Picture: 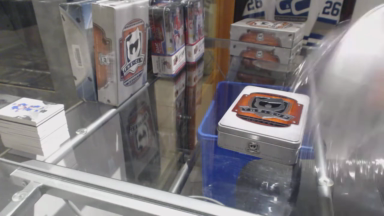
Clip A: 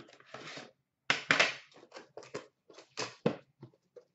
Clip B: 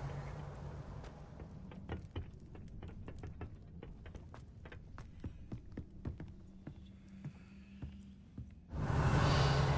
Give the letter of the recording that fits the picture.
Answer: A